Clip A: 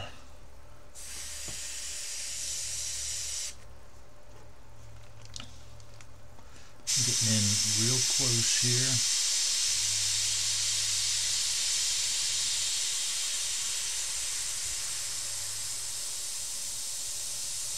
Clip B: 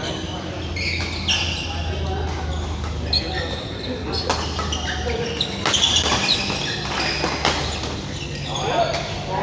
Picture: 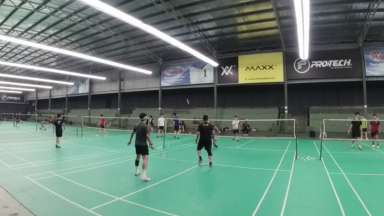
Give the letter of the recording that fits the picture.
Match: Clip B